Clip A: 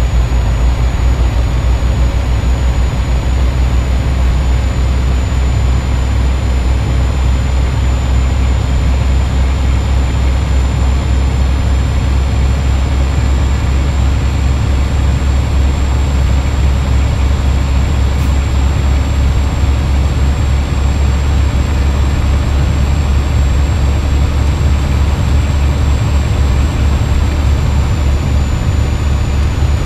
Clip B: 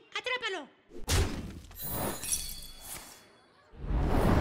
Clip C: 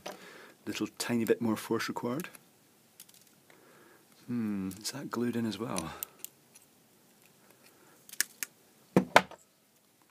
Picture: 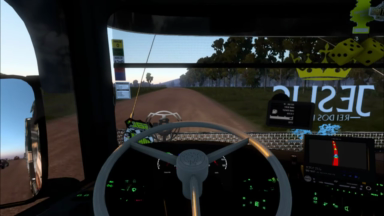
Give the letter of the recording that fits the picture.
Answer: A